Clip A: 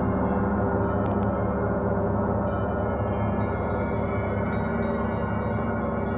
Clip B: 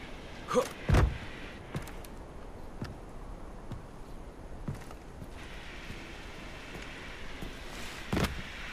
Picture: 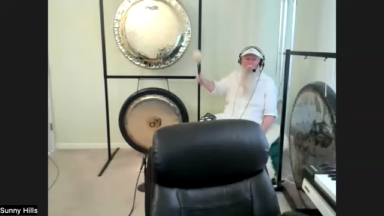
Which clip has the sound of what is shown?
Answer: A